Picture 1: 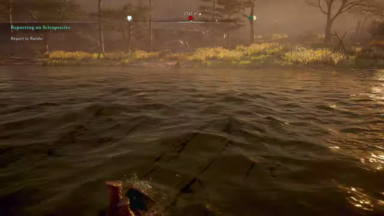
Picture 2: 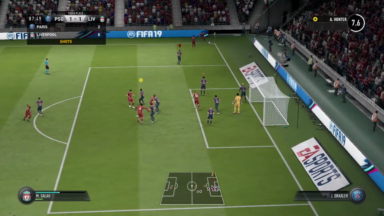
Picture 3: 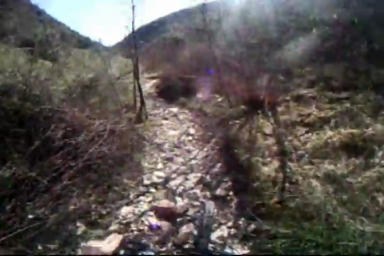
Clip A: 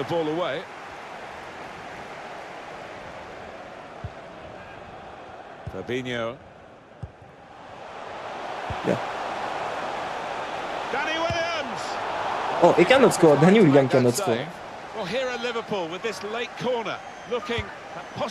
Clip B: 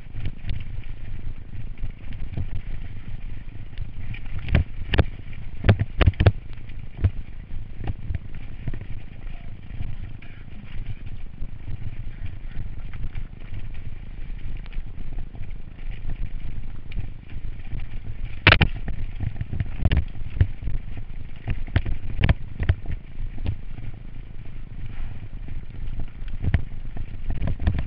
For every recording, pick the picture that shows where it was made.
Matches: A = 2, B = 3